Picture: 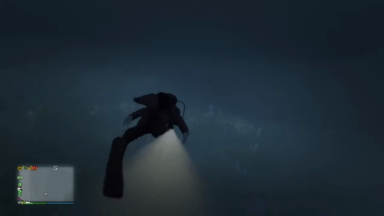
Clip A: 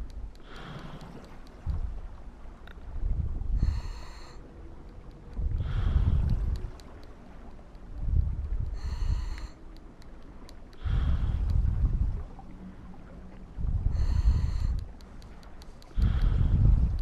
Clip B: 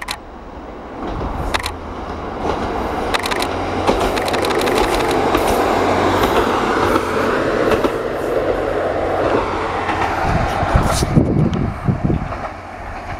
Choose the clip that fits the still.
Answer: A